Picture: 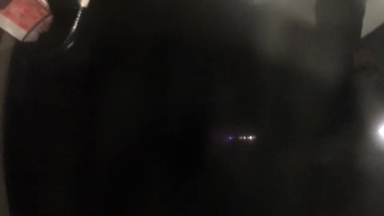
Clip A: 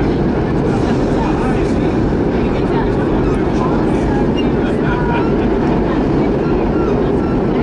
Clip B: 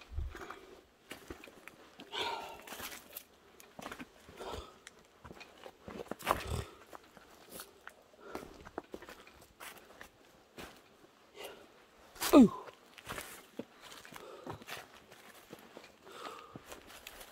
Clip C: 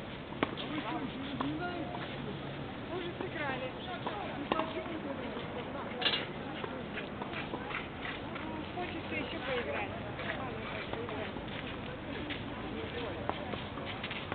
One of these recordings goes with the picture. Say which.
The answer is A